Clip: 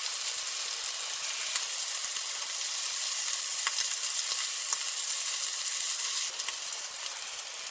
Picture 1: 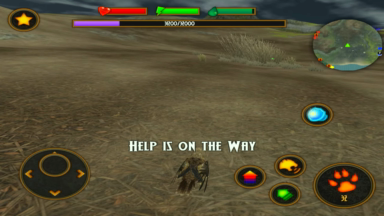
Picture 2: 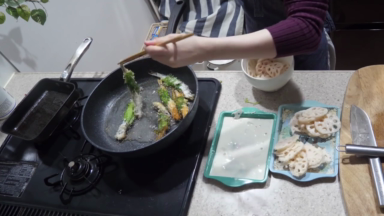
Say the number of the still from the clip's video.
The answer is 2